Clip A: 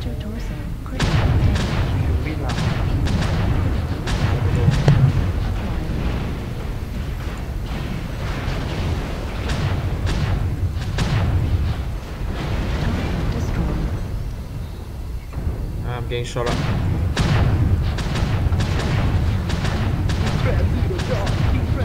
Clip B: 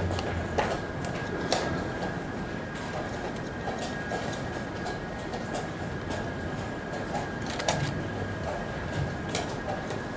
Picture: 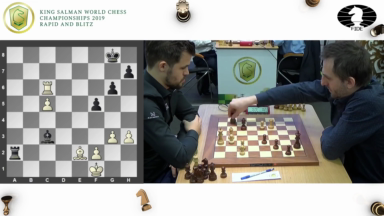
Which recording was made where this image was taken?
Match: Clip B